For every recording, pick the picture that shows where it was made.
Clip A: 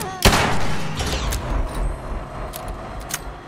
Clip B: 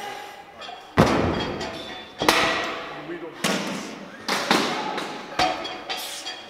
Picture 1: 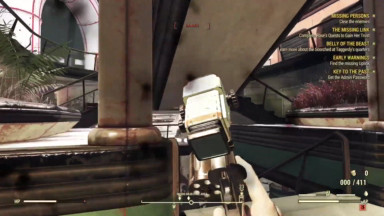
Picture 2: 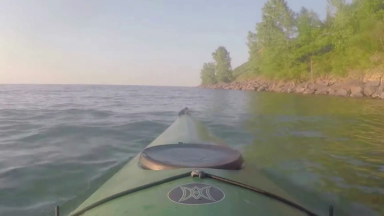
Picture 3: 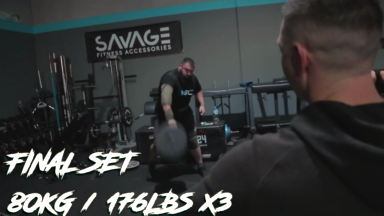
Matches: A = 1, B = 3